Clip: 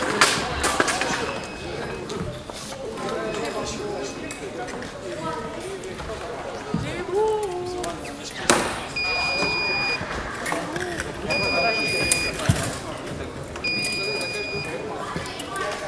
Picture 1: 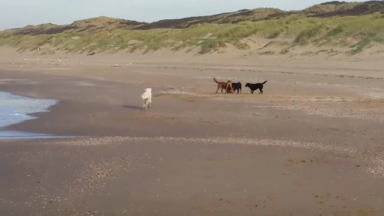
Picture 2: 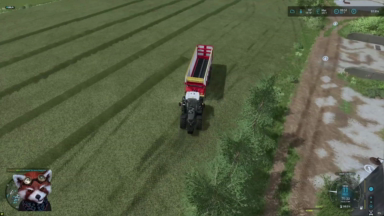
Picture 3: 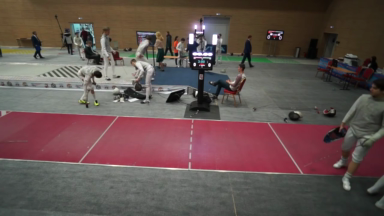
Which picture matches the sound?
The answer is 3